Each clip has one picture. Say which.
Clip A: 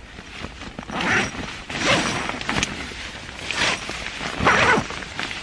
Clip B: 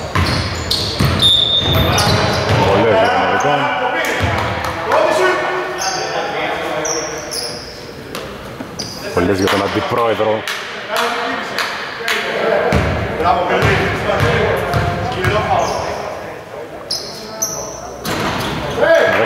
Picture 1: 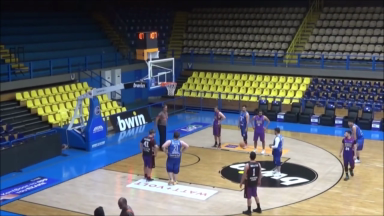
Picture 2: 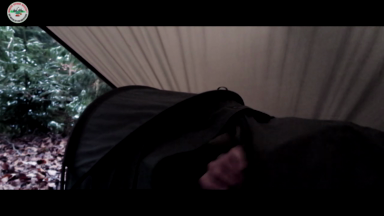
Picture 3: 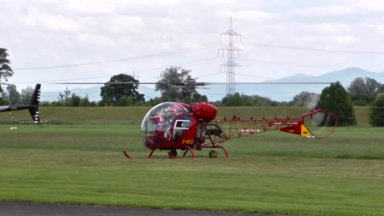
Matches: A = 2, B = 1